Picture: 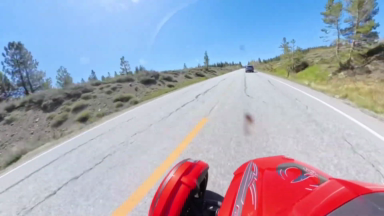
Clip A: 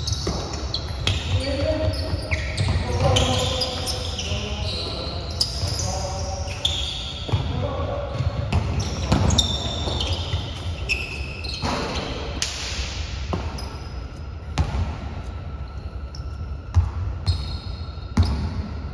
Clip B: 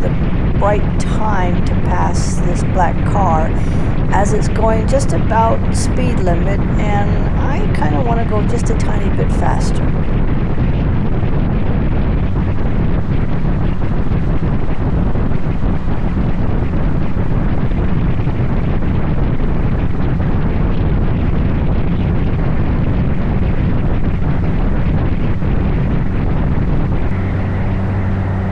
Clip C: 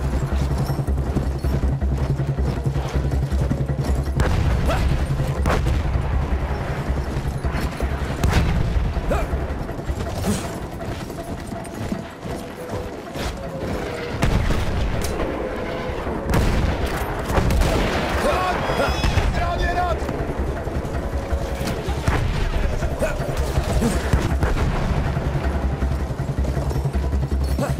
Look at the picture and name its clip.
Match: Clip B